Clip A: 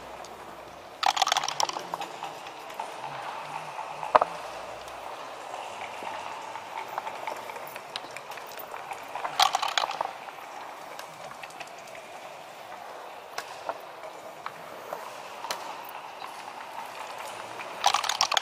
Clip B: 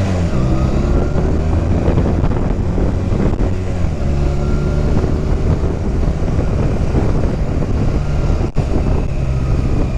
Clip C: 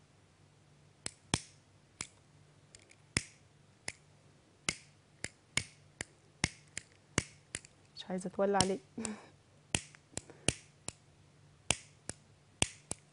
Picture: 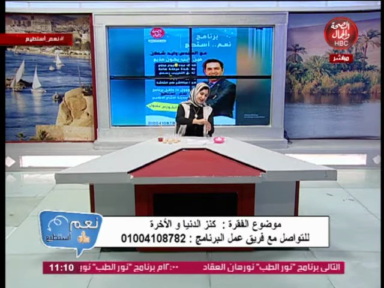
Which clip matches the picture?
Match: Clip C